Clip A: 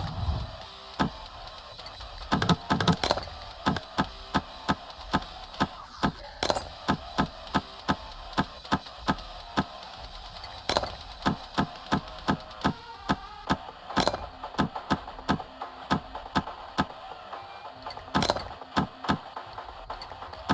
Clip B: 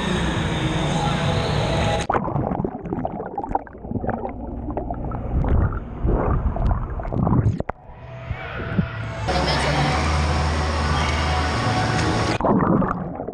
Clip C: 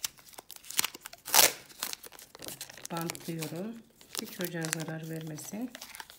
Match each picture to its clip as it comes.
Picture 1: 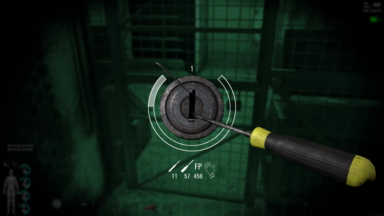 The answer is A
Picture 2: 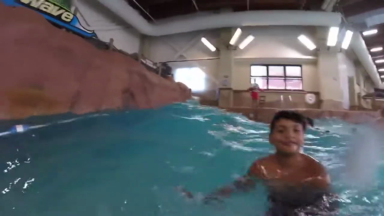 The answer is B